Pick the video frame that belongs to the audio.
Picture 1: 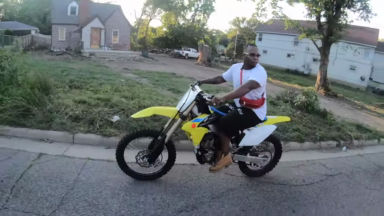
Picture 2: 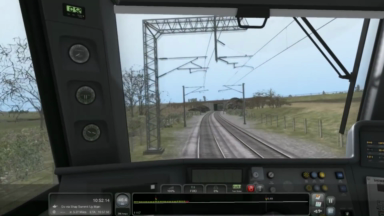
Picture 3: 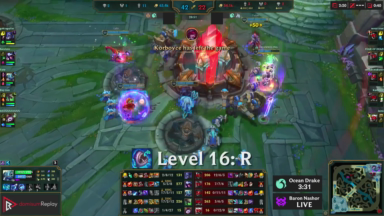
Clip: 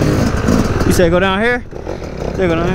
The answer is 1